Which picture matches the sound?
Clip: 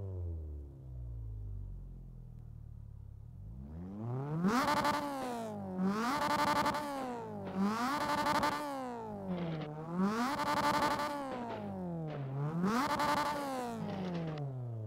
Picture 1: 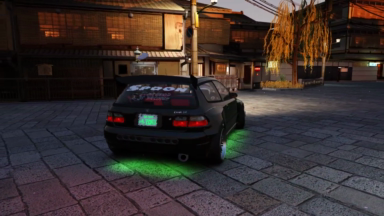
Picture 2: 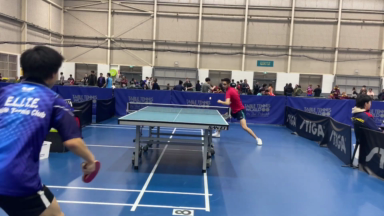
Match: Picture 1